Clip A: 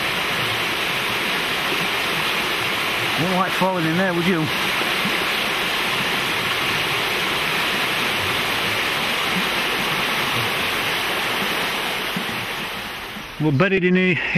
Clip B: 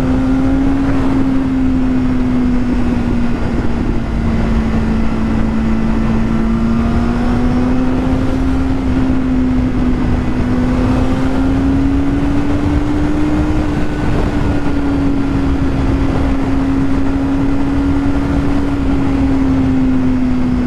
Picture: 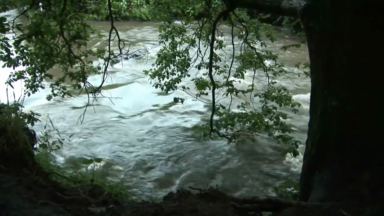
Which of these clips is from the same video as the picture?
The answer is A